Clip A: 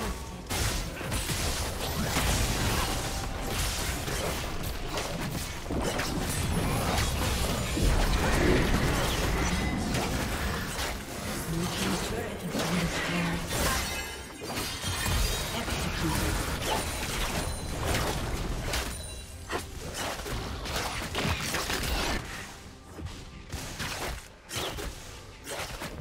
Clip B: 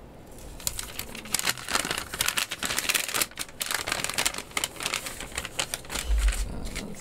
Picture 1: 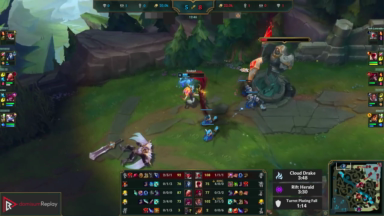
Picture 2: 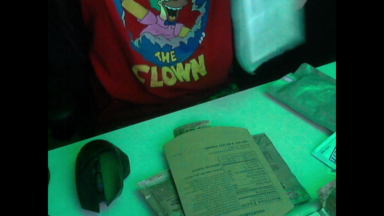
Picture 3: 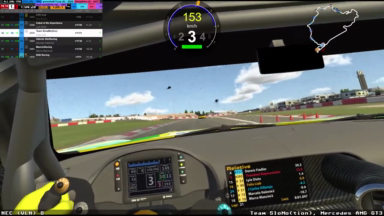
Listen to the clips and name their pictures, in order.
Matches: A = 1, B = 2